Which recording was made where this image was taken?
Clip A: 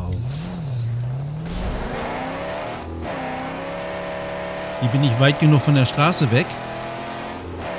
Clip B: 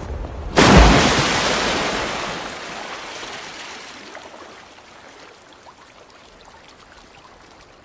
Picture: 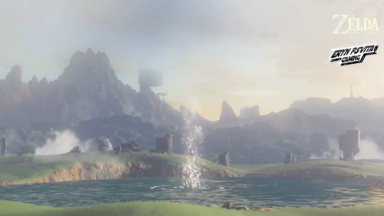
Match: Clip B